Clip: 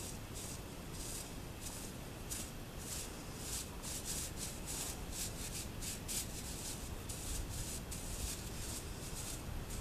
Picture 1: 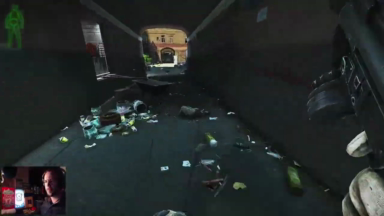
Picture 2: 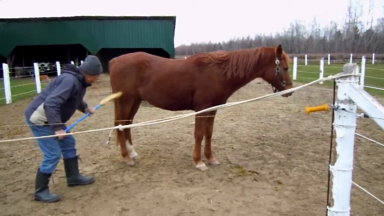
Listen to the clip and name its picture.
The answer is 2